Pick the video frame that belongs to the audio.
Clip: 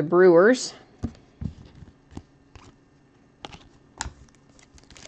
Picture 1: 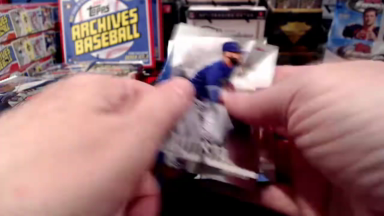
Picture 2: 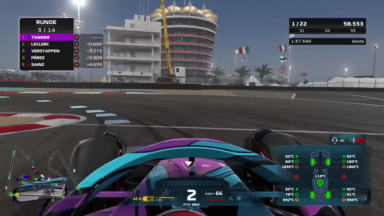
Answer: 1